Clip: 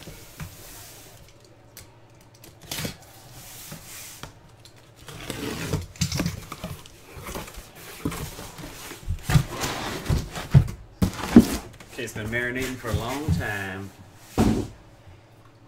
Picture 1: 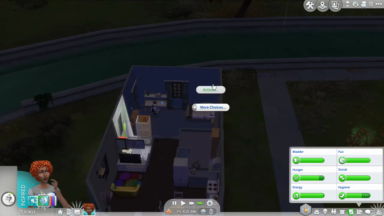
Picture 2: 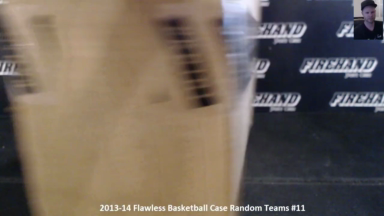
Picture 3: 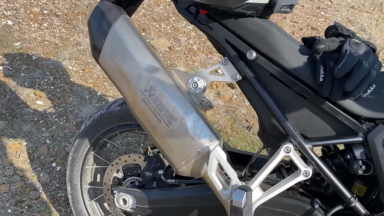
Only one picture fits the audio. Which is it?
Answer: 2